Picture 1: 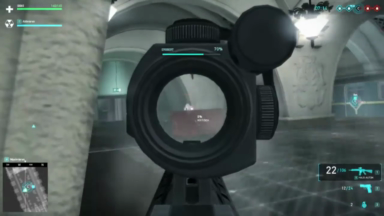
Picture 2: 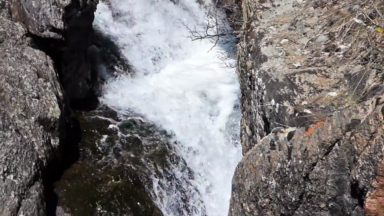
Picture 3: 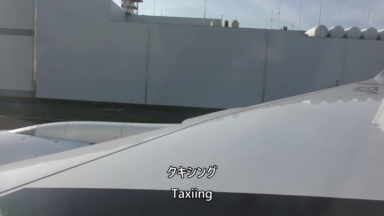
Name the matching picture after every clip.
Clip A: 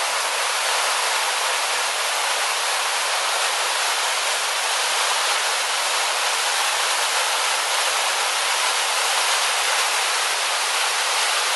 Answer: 2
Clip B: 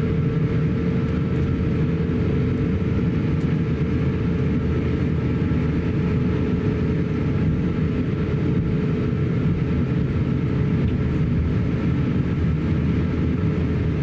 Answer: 3